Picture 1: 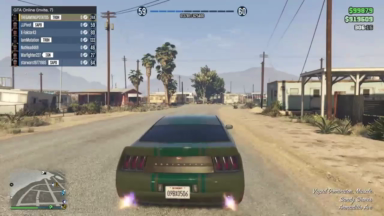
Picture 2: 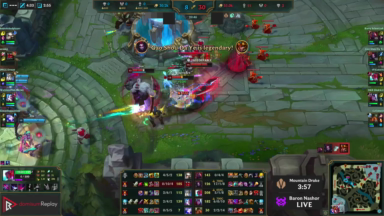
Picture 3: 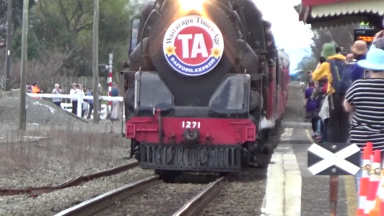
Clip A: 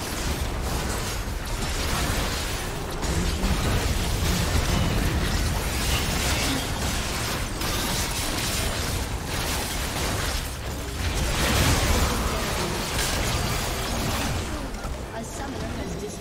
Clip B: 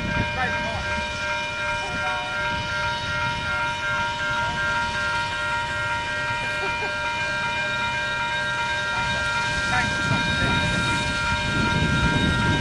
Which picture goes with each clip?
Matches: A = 2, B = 3